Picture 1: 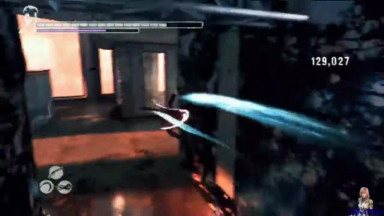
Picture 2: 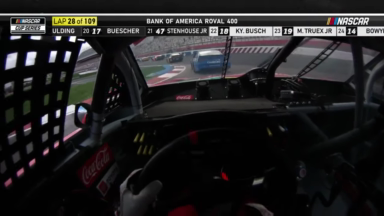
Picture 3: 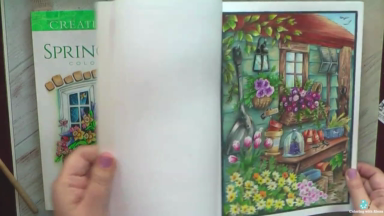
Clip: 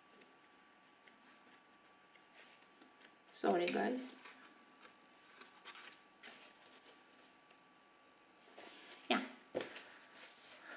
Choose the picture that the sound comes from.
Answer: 3